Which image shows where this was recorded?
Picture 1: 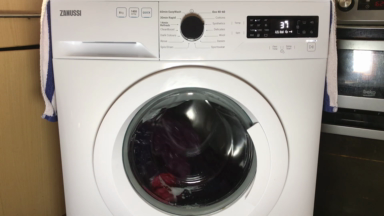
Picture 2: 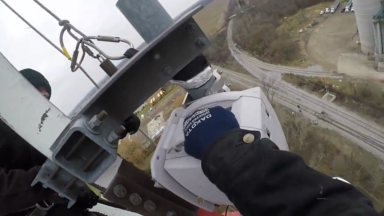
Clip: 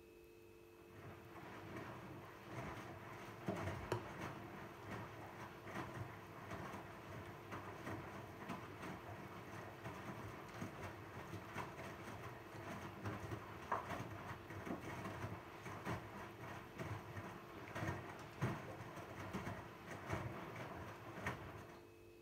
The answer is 1